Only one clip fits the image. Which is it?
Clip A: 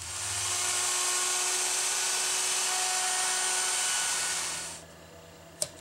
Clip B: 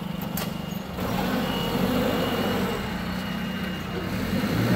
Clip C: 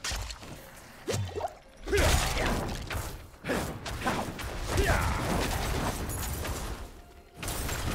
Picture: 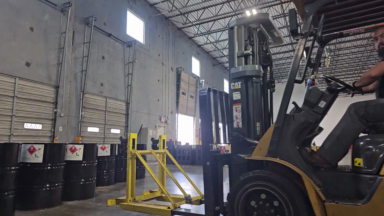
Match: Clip B